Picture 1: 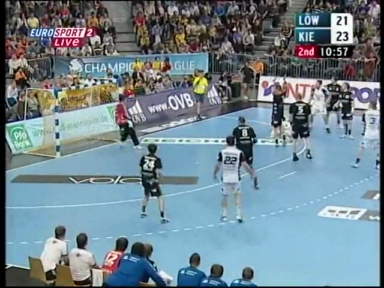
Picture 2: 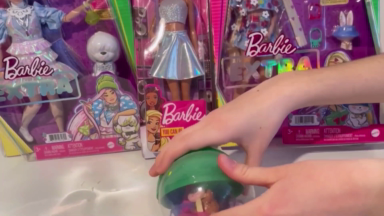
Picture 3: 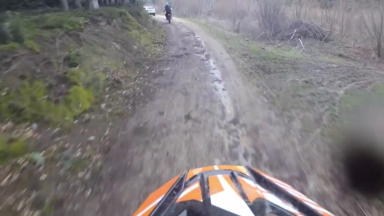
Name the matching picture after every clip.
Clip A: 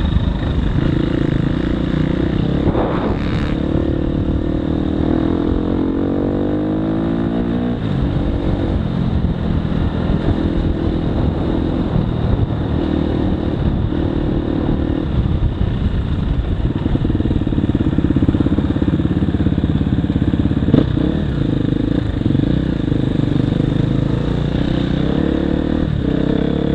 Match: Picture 3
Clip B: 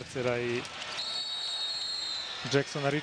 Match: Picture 1